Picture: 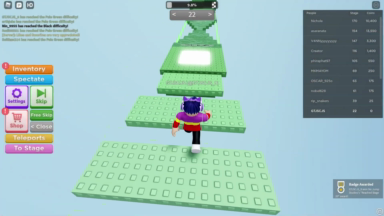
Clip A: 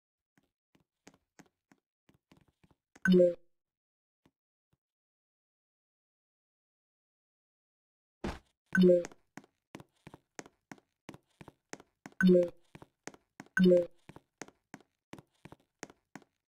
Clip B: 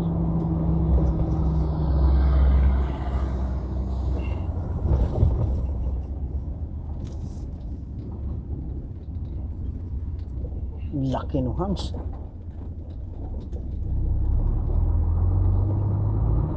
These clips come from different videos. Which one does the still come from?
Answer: A